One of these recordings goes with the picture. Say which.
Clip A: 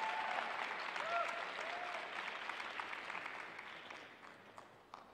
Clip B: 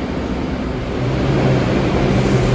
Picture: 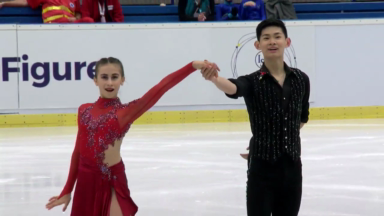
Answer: A